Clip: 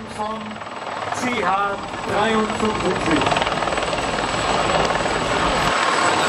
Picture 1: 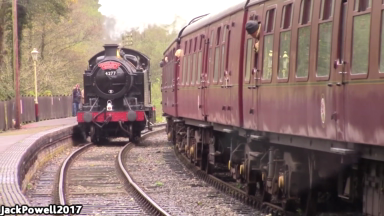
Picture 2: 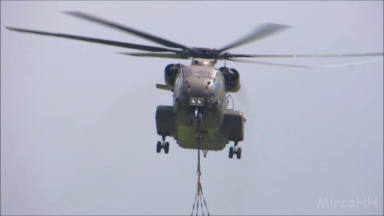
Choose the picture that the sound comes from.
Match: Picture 2